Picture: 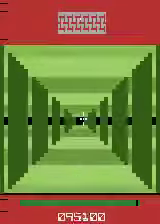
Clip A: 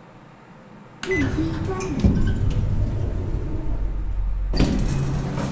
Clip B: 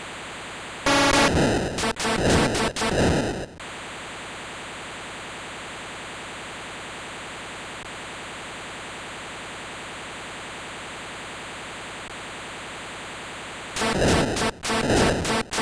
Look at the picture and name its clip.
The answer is B